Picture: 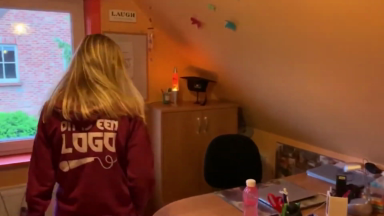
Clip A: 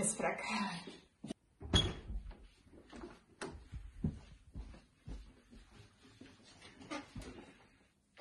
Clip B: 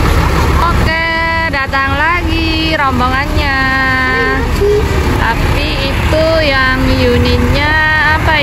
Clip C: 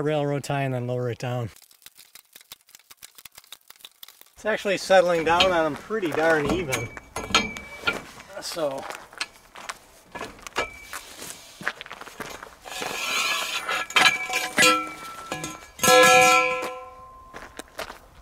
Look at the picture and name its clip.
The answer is A